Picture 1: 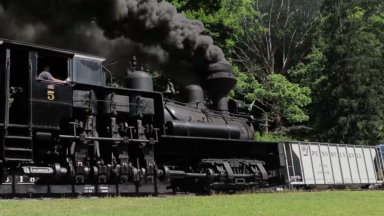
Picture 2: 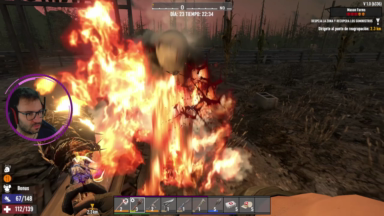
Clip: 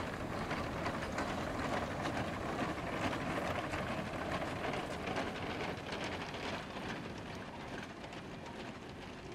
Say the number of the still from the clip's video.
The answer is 1